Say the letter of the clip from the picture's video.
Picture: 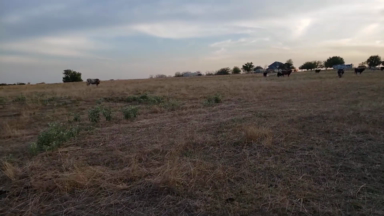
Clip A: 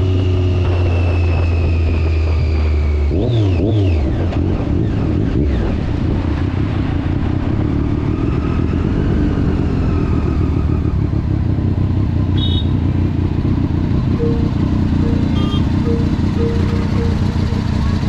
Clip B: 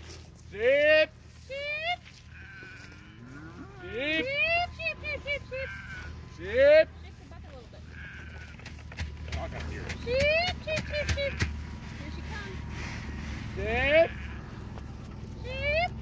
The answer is B